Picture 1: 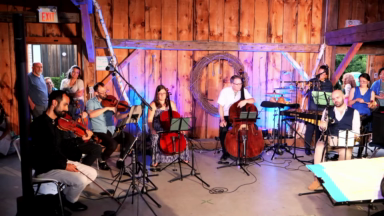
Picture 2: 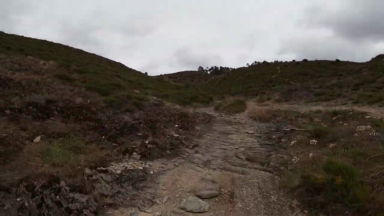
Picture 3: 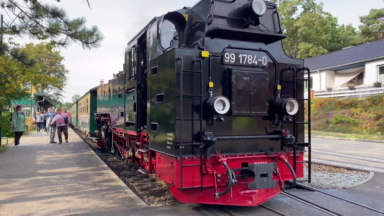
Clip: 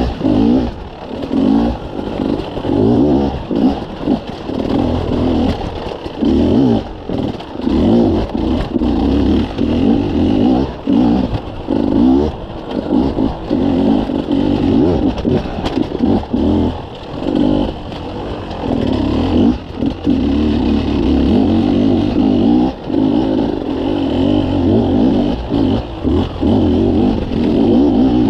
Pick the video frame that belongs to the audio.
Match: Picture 2